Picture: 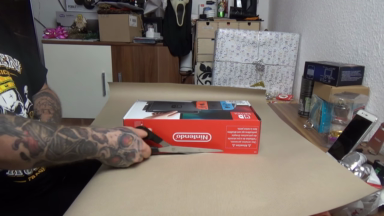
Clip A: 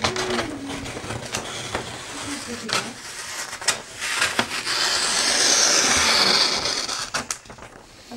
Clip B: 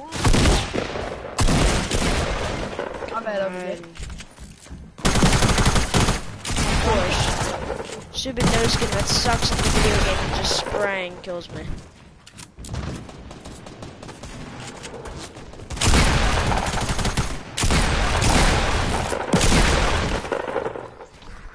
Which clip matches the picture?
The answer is A